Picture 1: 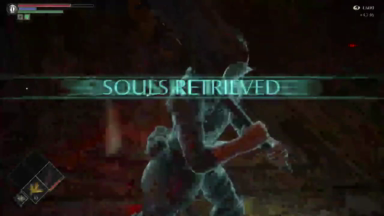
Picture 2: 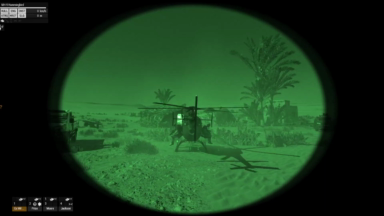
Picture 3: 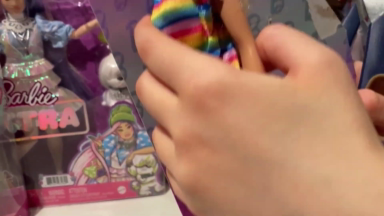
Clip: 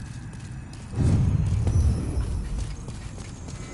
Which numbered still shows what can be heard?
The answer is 1